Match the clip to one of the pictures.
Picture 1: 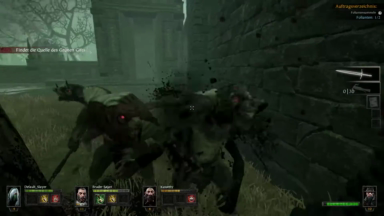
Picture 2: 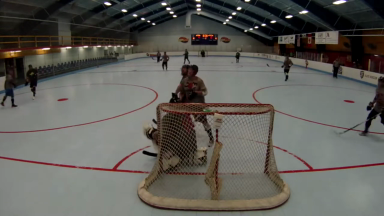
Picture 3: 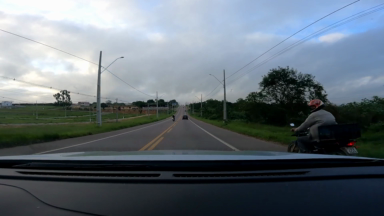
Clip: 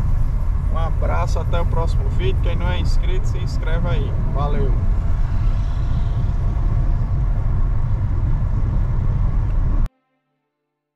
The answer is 3